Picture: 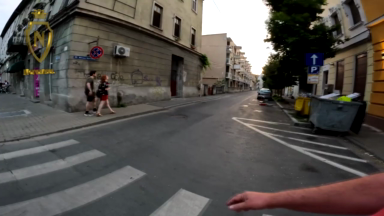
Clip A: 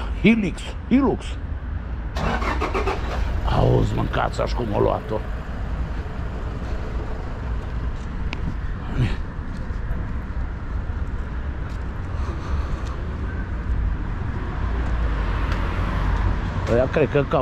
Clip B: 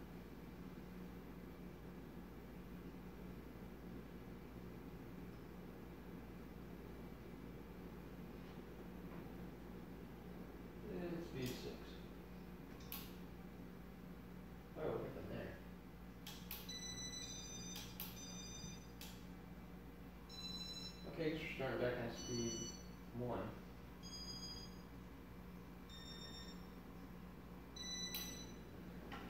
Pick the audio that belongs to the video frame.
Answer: A